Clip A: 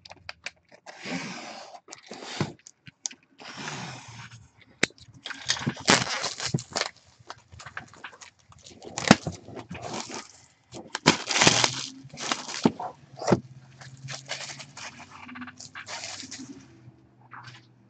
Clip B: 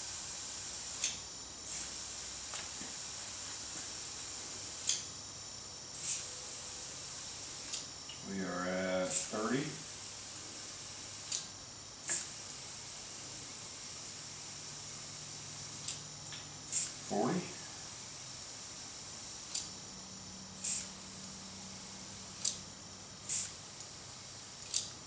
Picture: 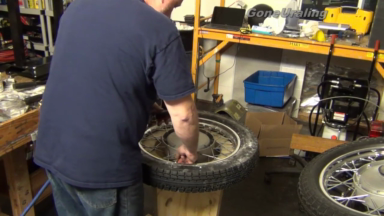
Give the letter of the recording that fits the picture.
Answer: B